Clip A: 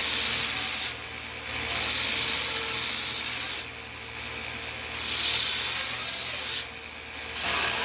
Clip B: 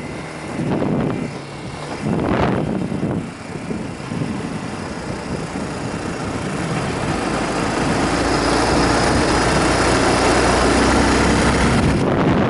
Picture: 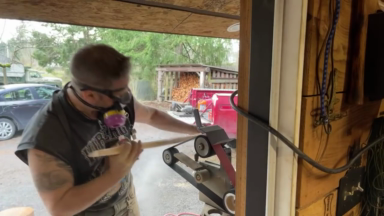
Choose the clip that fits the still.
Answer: A